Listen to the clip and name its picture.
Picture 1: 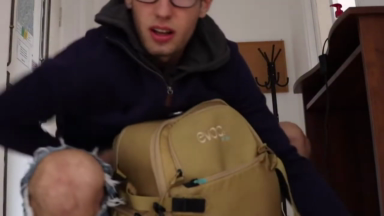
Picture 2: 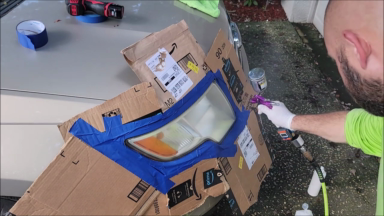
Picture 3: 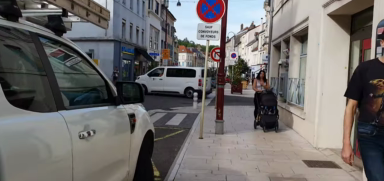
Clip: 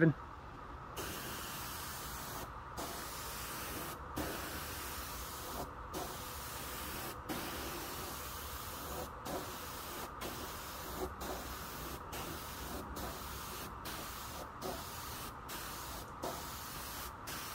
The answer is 2